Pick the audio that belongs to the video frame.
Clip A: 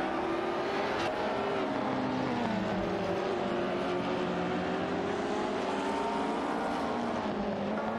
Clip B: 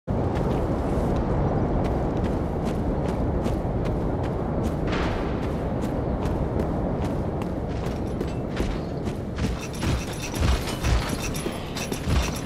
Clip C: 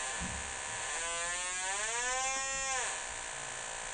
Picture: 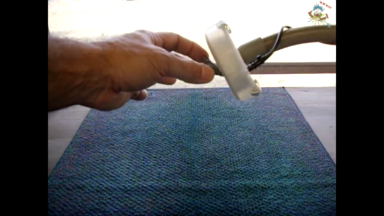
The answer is C